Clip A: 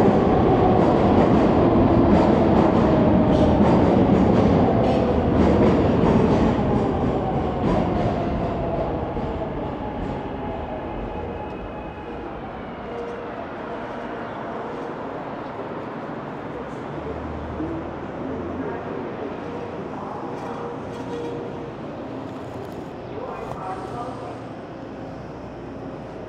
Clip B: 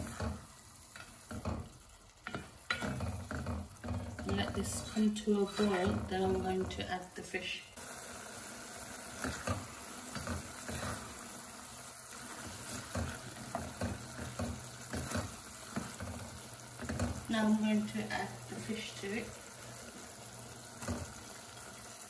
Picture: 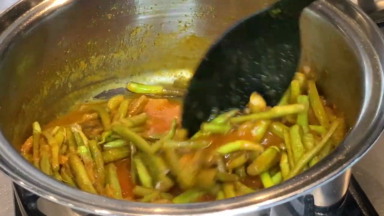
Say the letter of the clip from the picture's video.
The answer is B